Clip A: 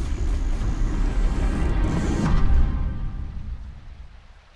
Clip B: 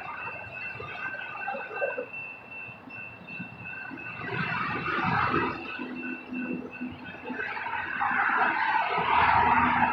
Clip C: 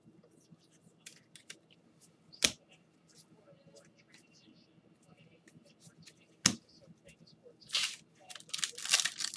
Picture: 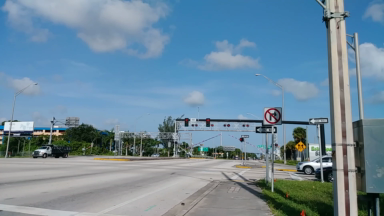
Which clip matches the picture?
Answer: B